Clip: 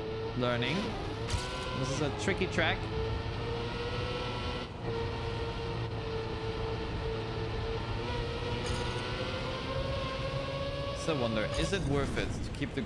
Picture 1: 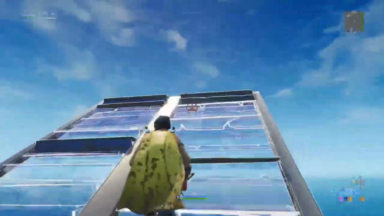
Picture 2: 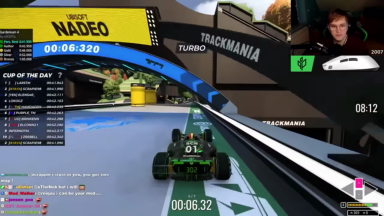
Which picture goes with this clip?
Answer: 2